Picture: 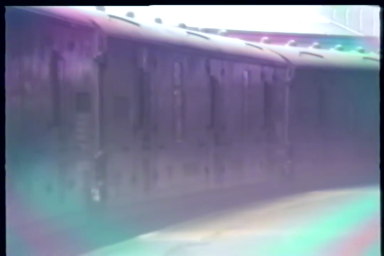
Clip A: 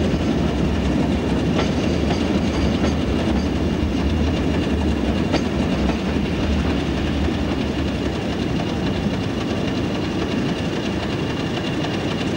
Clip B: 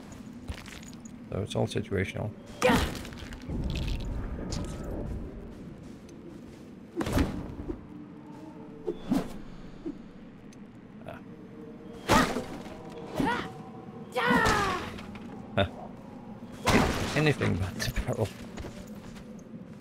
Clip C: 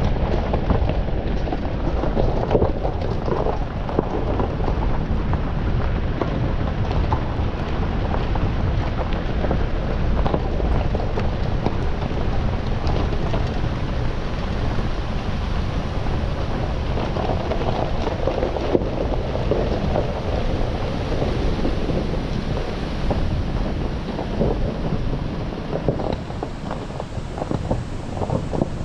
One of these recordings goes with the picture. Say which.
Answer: A